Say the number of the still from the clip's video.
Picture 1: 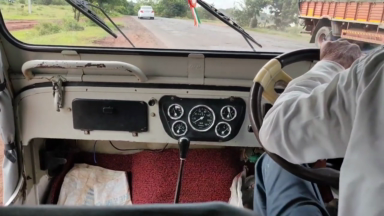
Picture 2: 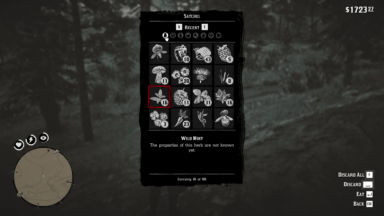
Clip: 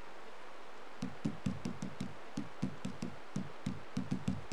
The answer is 2